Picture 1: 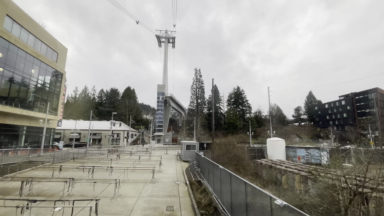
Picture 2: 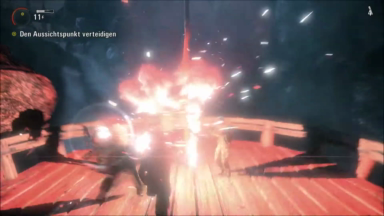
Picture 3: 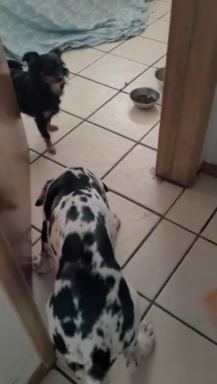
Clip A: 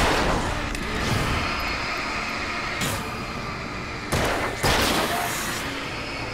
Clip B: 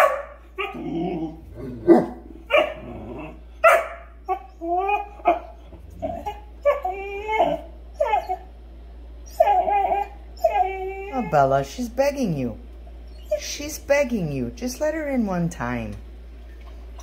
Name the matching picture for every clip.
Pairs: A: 2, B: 3